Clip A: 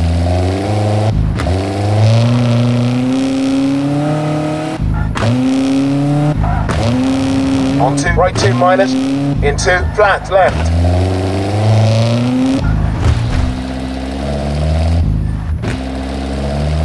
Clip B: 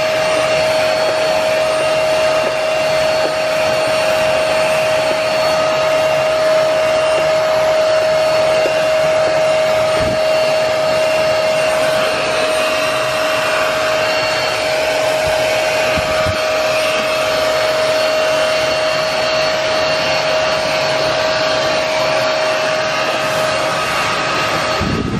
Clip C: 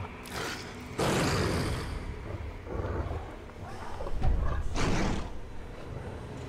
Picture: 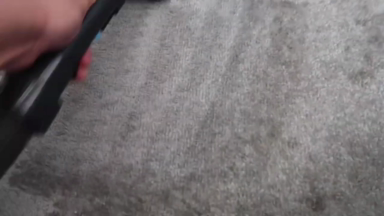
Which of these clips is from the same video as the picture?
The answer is B